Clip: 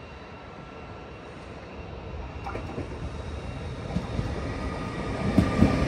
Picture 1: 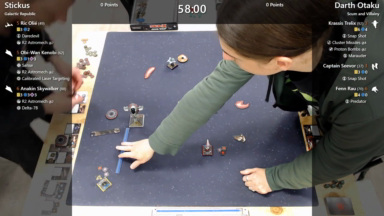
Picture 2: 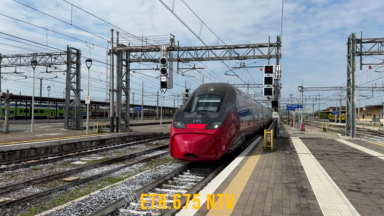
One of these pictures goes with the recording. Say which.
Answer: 2